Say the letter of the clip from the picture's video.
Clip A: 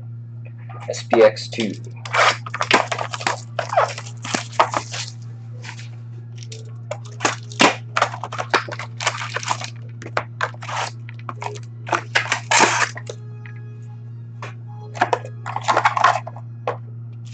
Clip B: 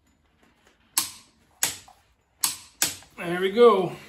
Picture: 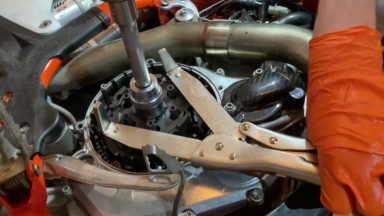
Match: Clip B